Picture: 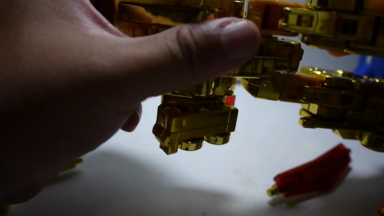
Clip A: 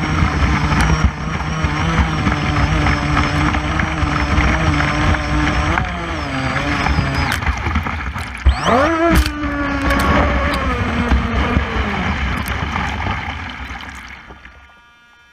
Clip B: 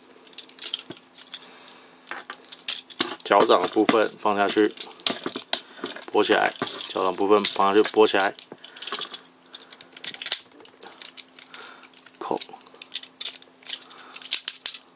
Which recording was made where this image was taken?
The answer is B